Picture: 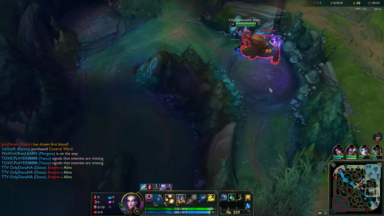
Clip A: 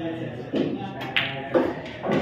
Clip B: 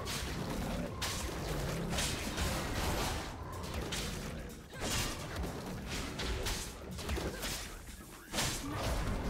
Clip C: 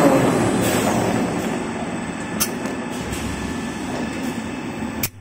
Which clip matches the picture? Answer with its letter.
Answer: B